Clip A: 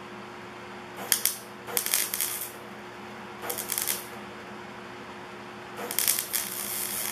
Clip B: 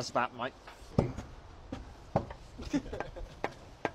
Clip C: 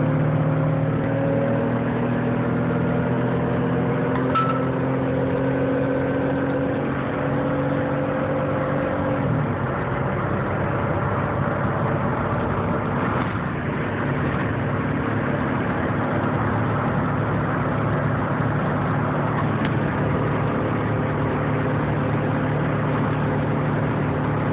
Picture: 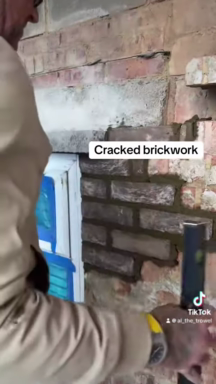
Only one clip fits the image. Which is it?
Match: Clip B